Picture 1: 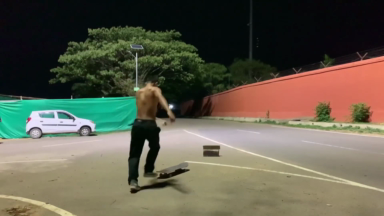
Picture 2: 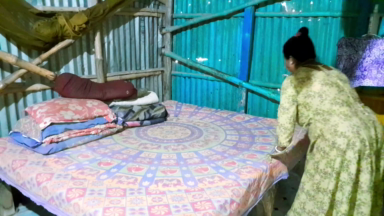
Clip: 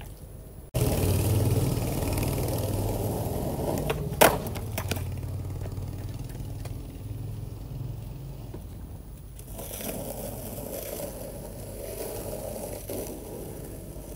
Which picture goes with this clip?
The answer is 1